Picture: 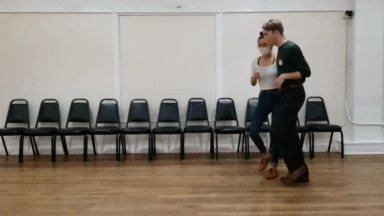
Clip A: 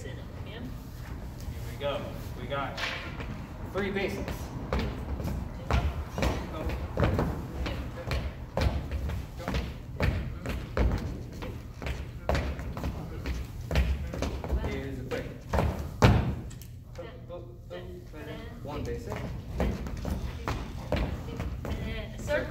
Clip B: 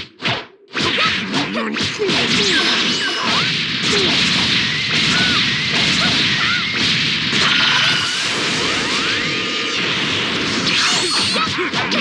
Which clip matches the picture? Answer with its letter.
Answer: A